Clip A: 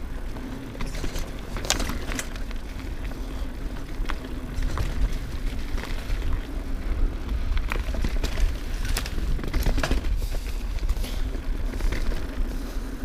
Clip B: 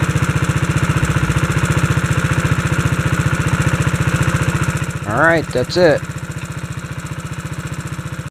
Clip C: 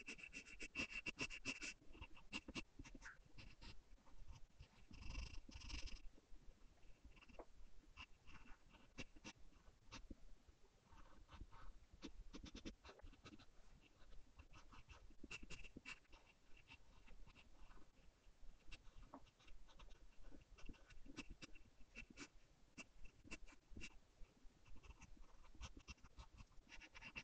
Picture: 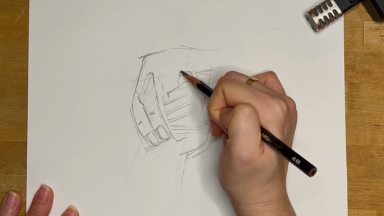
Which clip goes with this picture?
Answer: C